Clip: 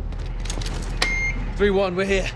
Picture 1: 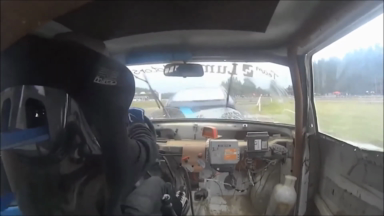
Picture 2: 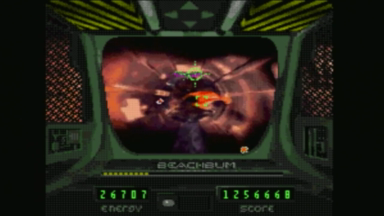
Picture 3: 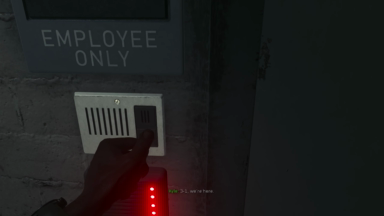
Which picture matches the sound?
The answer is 3